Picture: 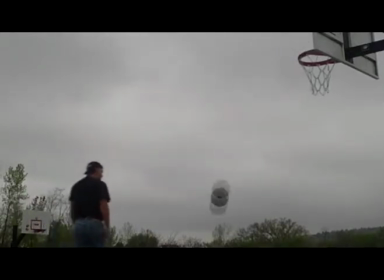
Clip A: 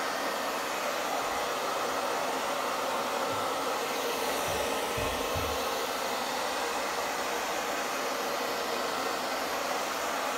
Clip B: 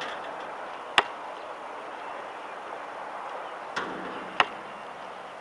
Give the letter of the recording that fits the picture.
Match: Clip B